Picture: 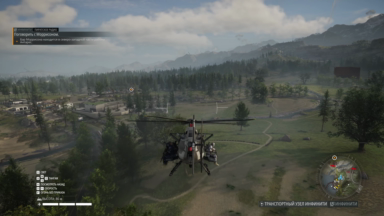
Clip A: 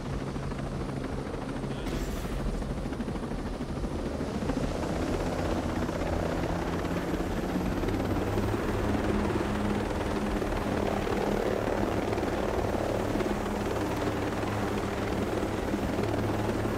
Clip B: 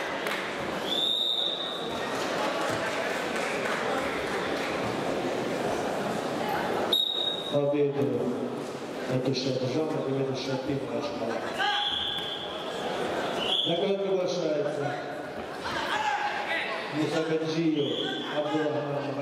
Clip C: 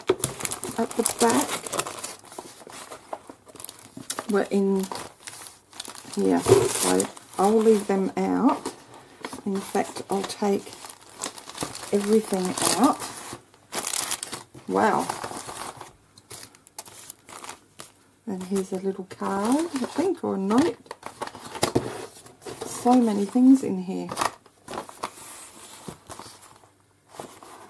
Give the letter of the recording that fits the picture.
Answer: A